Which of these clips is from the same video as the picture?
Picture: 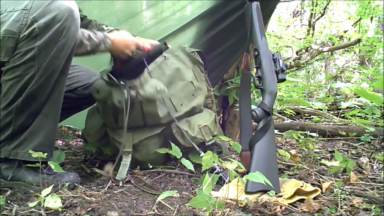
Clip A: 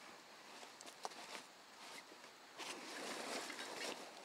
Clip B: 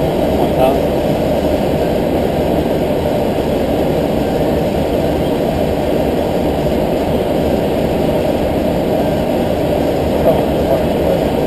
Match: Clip A